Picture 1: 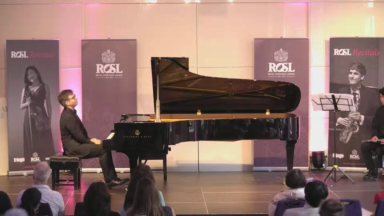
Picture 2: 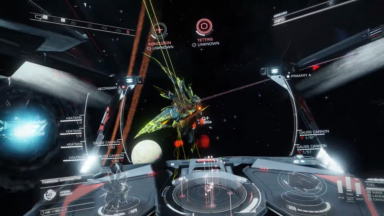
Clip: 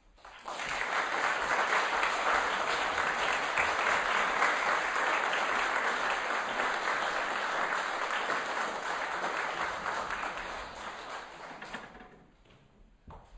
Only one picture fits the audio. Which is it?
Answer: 1